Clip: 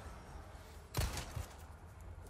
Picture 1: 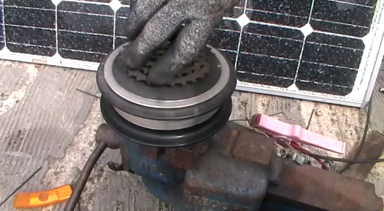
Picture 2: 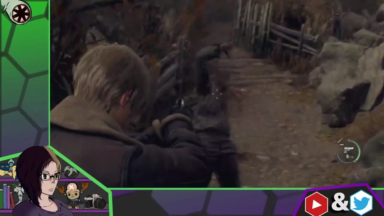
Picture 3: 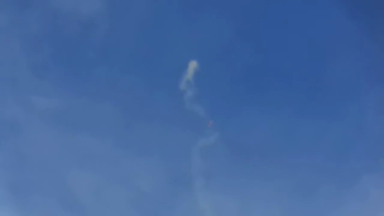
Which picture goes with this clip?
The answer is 2